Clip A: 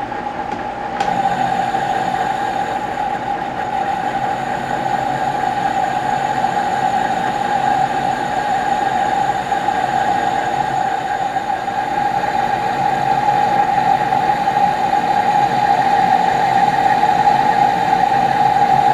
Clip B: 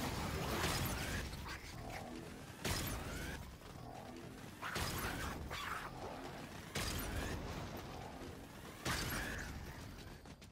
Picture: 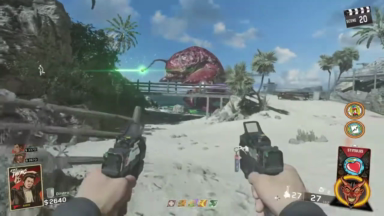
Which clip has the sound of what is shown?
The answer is B